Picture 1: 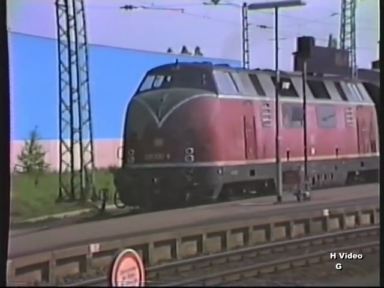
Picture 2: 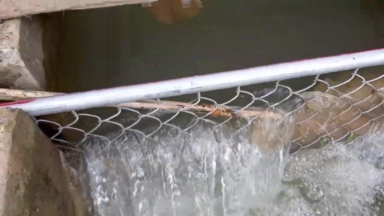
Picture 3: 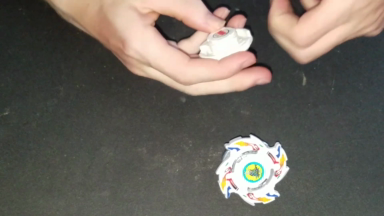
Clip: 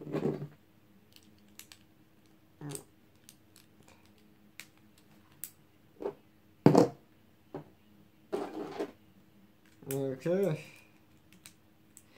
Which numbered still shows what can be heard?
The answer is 3